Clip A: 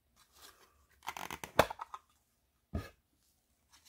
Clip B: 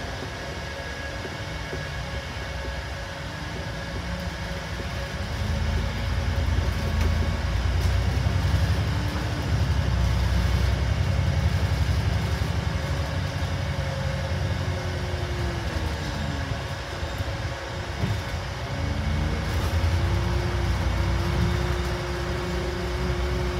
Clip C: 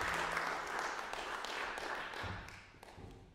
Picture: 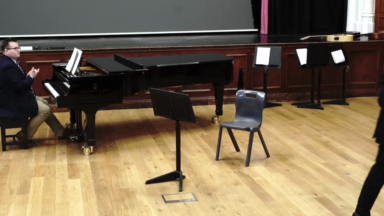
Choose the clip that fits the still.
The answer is C